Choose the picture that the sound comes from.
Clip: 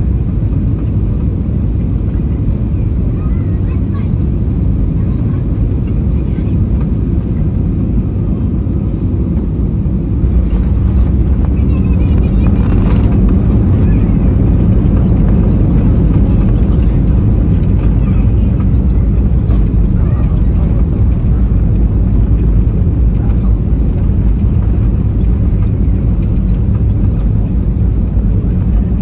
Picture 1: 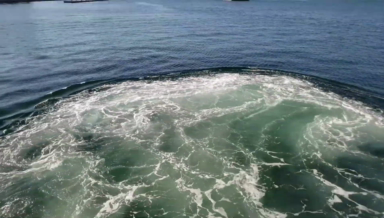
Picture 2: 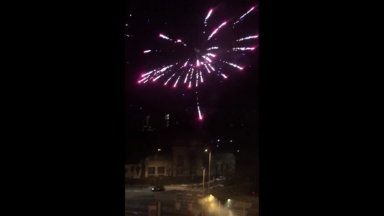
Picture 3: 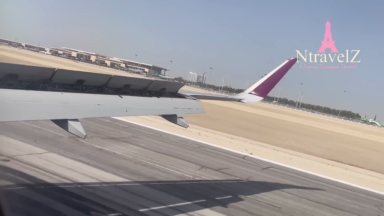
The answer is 3